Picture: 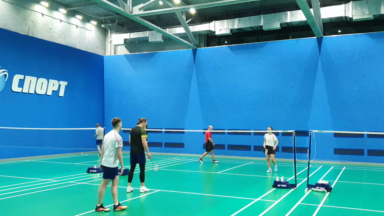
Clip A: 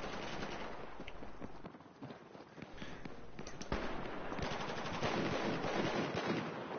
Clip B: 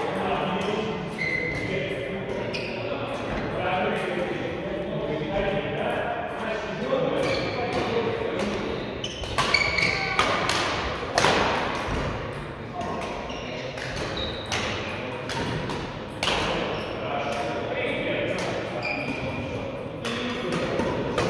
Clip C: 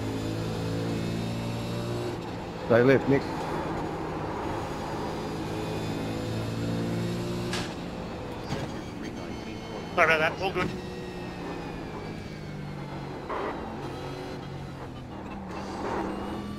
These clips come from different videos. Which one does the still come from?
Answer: B